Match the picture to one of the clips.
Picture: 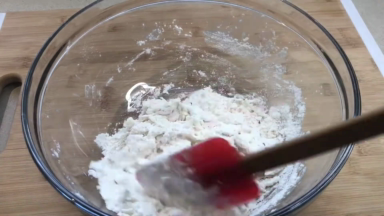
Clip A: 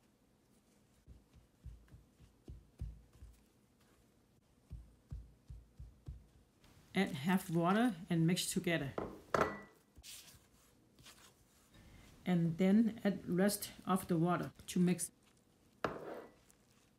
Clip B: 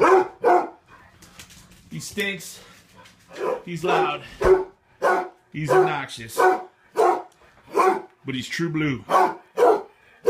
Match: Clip A